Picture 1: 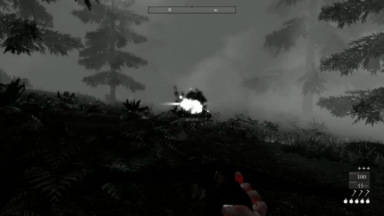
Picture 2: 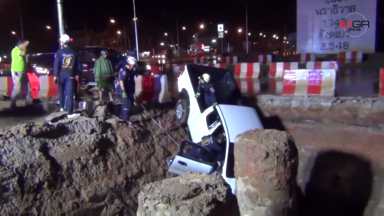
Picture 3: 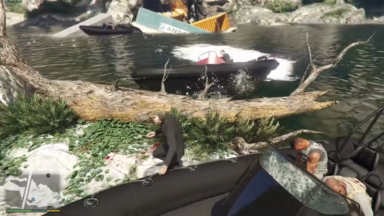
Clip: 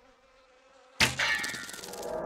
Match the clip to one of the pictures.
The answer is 1